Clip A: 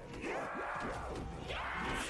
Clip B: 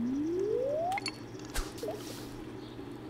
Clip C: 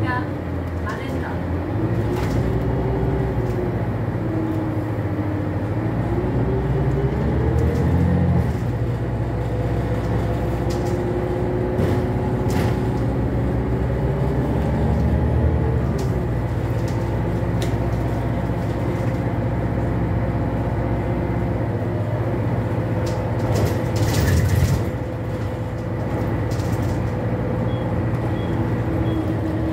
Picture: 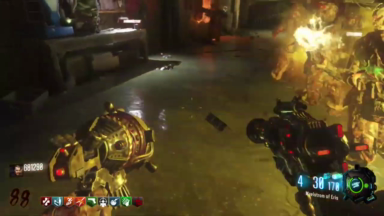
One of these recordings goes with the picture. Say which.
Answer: A